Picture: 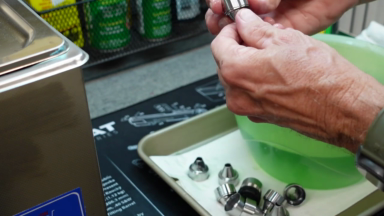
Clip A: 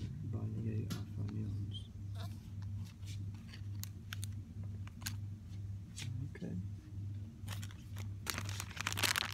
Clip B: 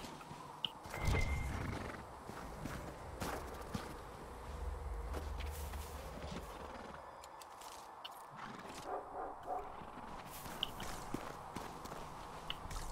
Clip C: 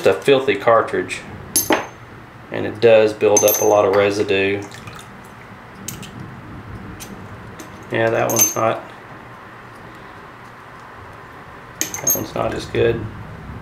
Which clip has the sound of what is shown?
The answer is C